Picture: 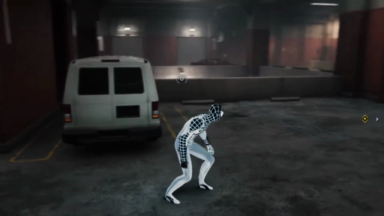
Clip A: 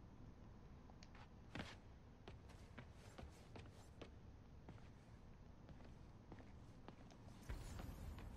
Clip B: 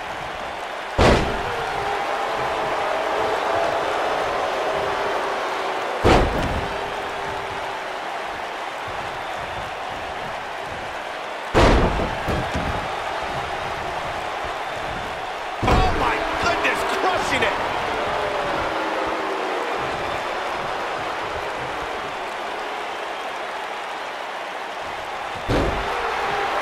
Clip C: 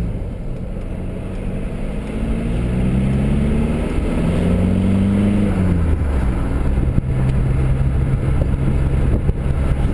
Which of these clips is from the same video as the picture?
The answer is A